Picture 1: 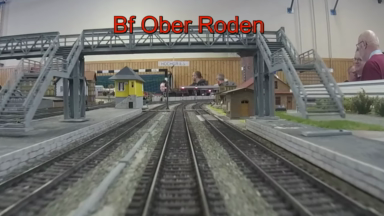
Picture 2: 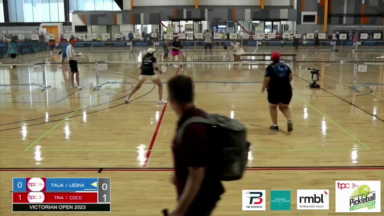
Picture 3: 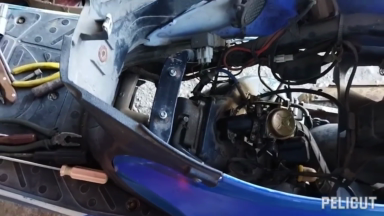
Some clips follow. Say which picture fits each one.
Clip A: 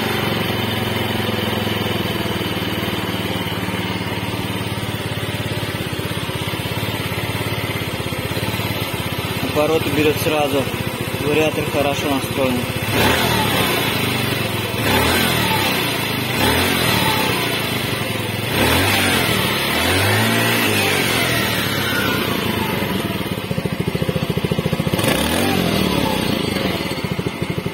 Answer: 3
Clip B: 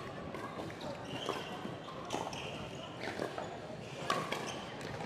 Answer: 2